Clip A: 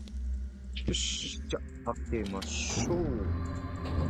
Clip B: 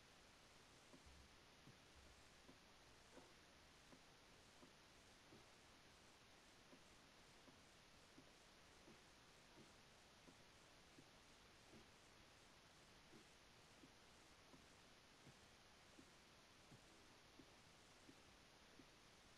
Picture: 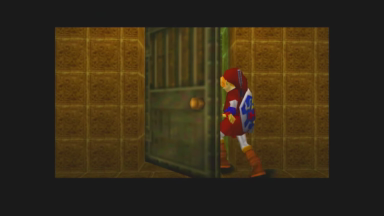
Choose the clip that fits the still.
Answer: A